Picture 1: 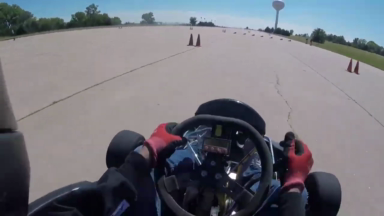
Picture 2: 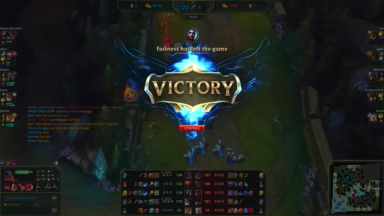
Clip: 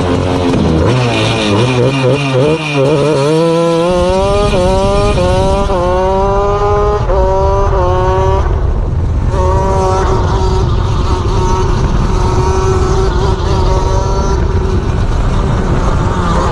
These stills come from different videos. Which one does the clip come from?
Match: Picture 1